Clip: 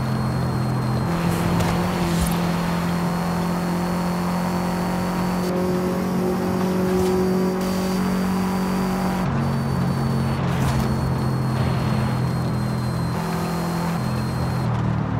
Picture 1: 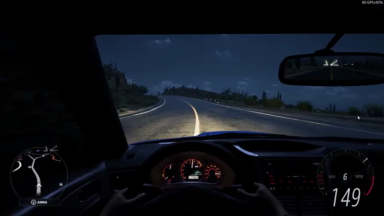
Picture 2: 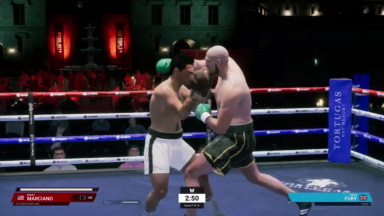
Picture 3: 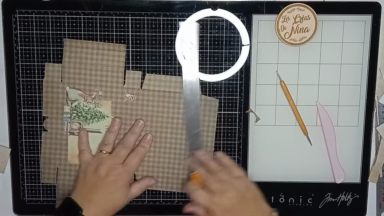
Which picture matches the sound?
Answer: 1